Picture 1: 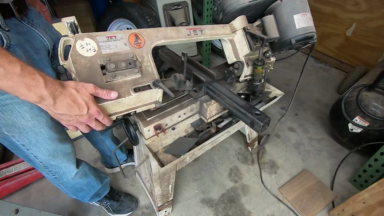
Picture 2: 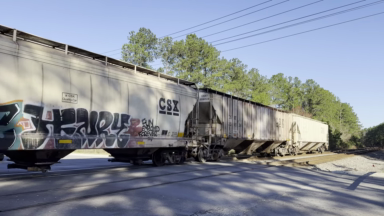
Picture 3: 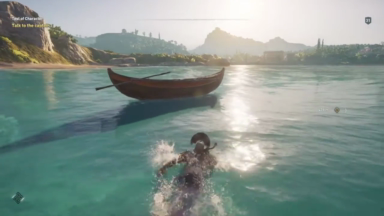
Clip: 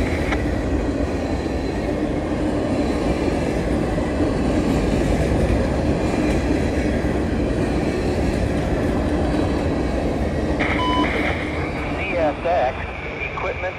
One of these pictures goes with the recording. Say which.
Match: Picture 2